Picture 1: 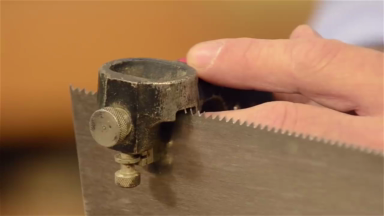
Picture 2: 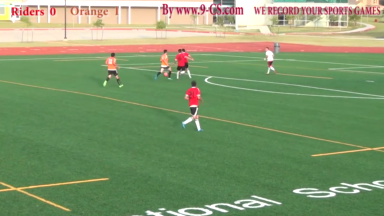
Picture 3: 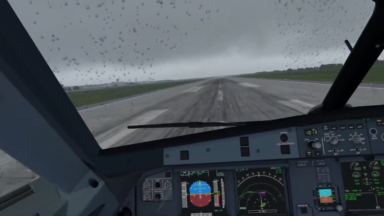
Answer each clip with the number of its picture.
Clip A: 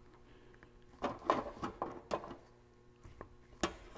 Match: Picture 1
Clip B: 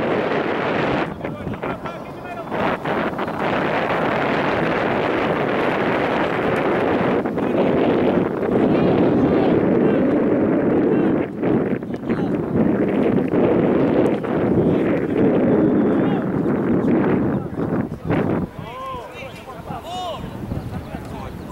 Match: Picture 2